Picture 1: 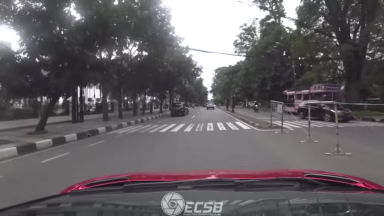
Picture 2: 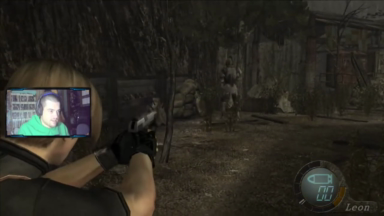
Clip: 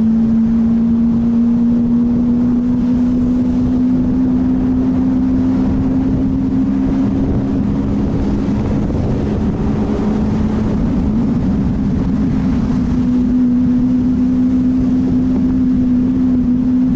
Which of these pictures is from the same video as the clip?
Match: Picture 1